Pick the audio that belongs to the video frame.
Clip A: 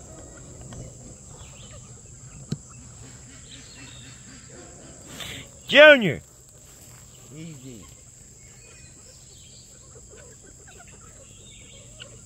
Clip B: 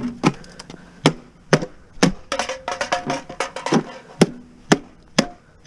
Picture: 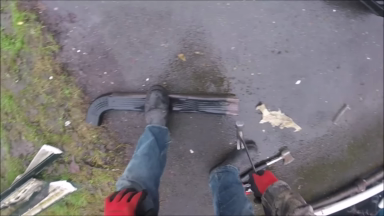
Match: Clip B